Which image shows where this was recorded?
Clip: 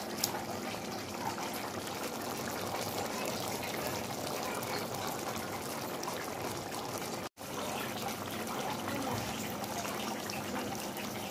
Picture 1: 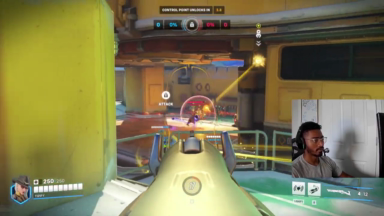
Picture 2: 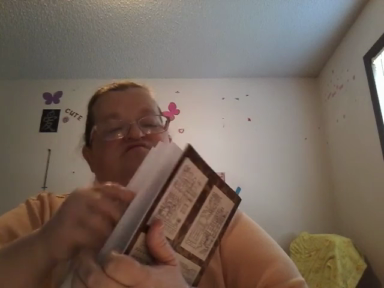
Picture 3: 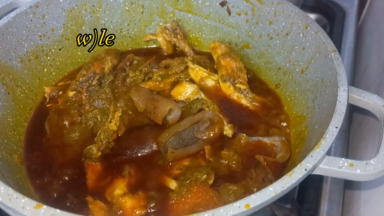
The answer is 3